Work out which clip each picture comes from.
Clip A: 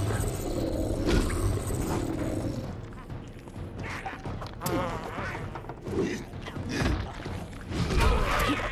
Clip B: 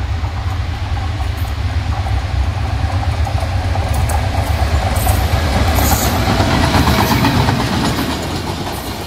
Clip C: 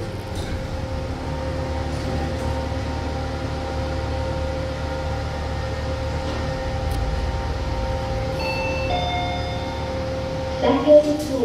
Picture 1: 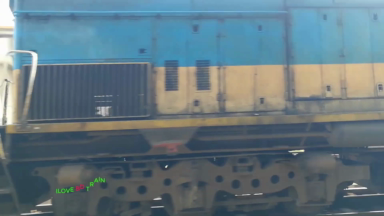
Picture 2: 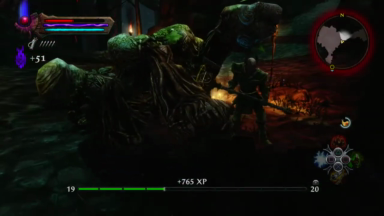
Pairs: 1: B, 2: A